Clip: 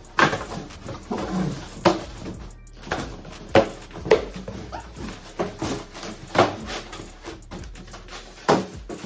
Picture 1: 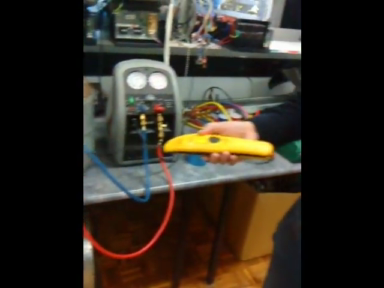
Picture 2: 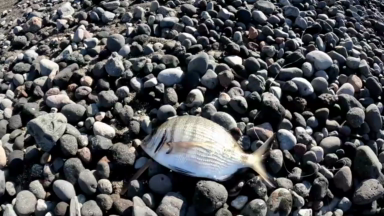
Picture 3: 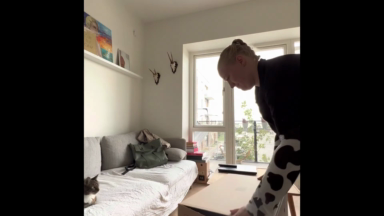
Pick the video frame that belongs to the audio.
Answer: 3